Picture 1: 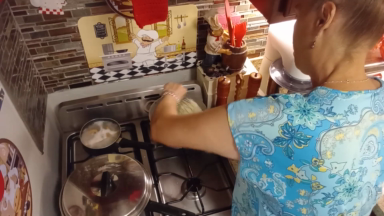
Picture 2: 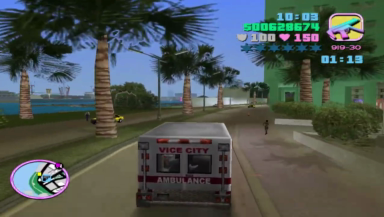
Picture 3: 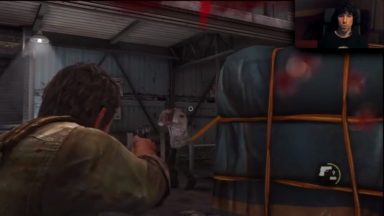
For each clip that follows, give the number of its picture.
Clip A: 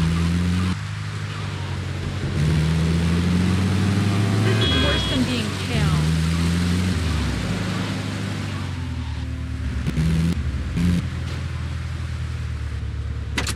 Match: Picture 2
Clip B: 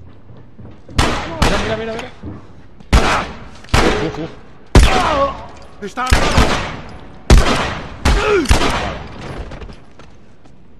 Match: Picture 3